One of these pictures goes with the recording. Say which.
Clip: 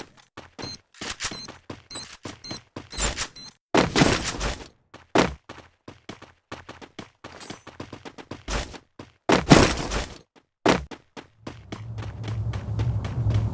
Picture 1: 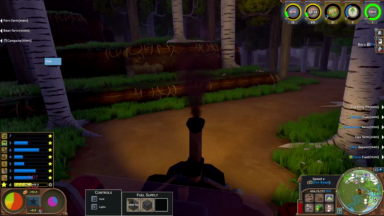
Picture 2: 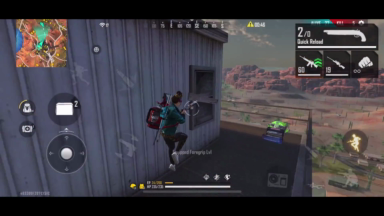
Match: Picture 2